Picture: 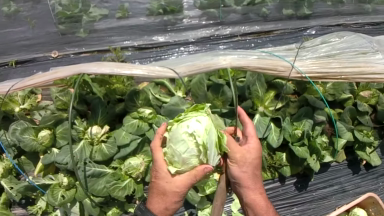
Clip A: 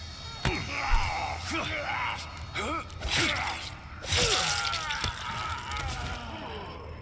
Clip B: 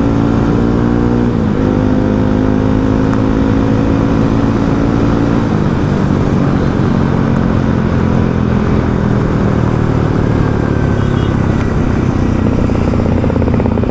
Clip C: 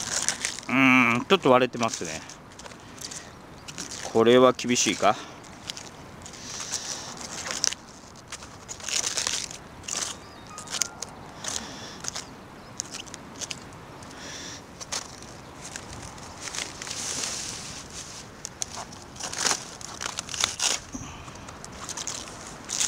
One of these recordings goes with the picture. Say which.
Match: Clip C